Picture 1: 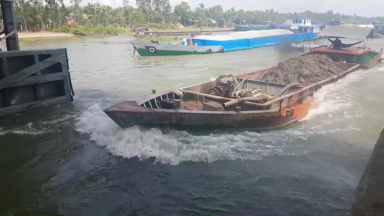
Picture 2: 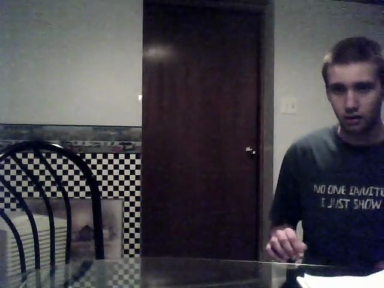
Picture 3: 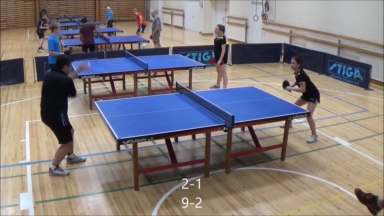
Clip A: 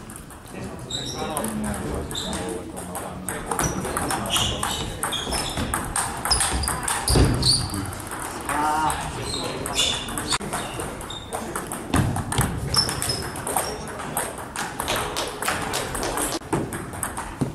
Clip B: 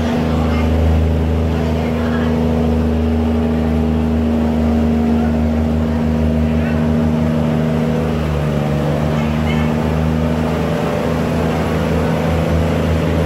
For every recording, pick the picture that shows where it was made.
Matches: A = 3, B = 1